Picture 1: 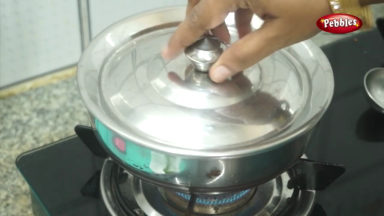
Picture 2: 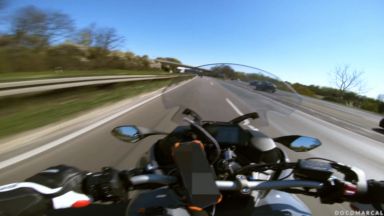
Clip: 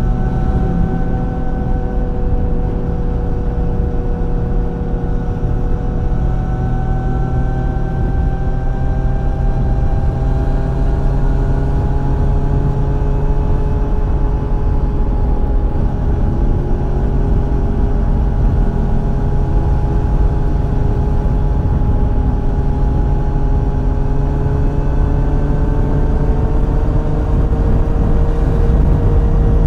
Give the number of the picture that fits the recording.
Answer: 2